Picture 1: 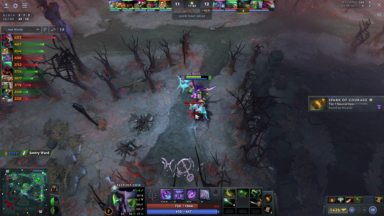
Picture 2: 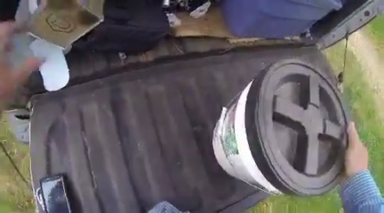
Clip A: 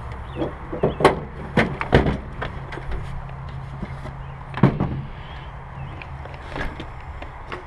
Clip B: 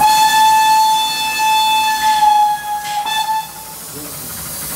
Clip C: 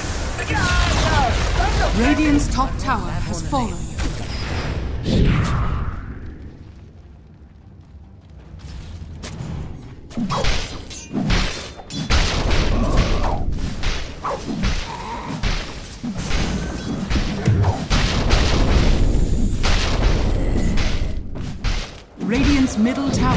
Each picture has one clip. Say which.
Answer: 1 C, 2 A